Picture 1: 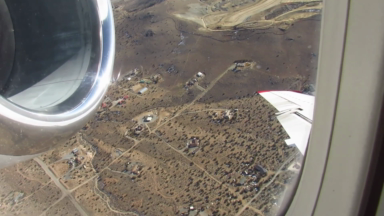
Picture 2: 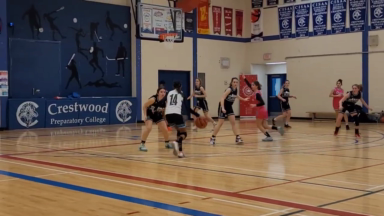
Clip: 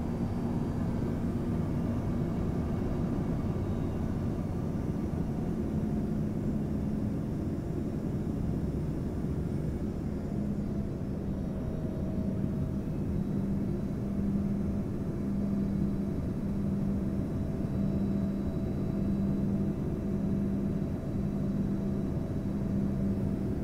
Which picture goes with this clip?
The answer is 1